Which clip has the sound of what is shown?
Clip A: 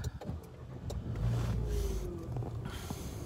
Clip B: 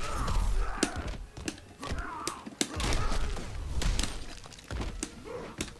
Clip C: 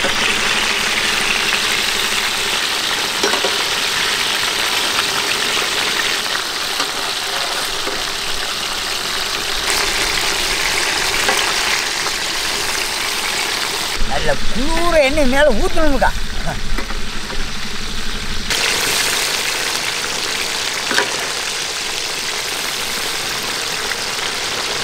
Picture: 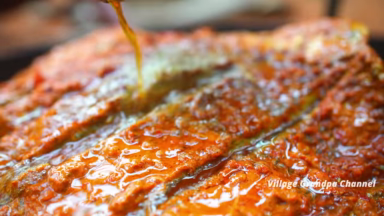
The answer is C